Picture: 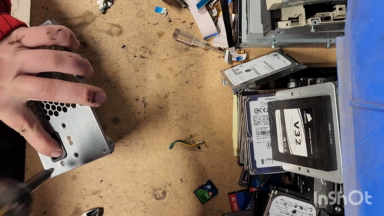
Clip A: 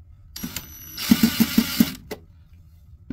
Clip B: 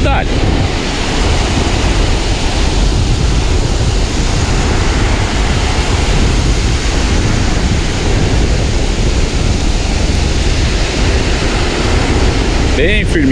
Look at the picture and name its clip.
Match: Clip A